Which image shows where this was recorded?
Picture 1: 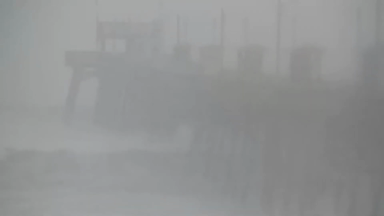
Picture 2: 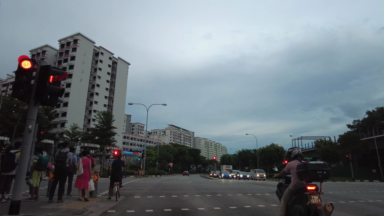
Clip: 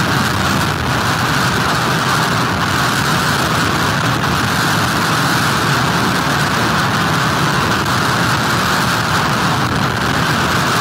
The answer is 1